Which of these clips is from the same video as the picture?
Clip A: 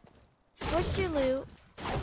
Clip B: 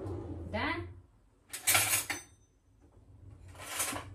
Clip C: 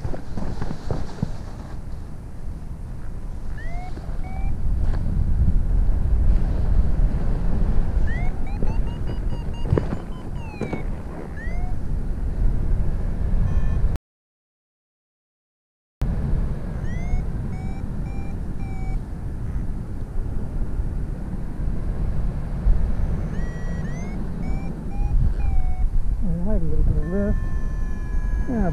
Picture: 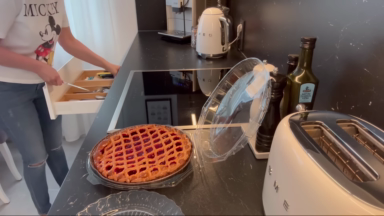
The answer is B